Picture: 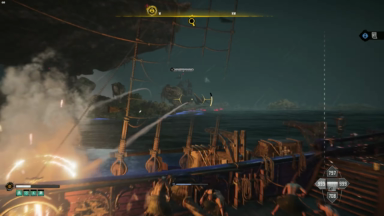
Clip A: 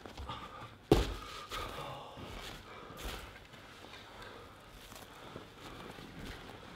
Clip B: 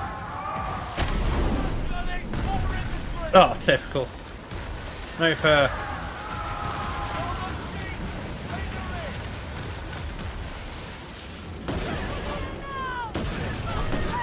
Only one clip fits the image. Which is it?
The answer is B